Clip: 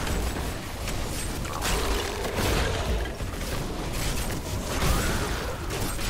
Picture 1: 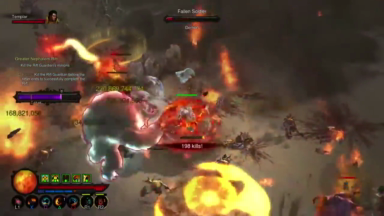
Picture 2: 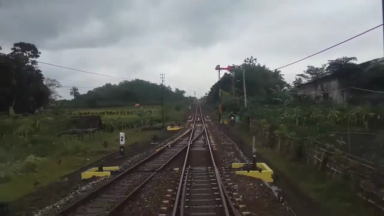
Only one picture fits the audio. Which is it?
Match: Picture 1